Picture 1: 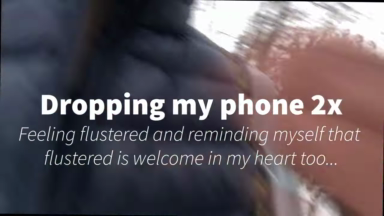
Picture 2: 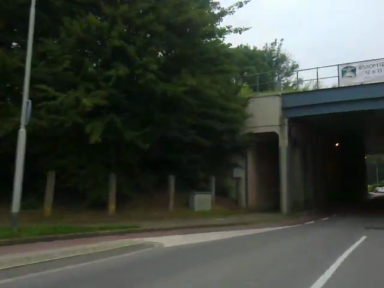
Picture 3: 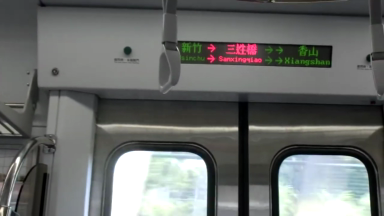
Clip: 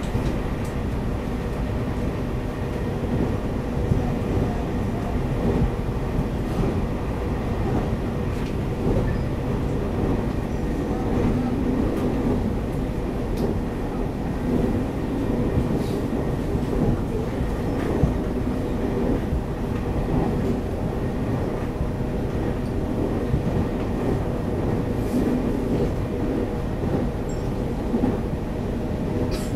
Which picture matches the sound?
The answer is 3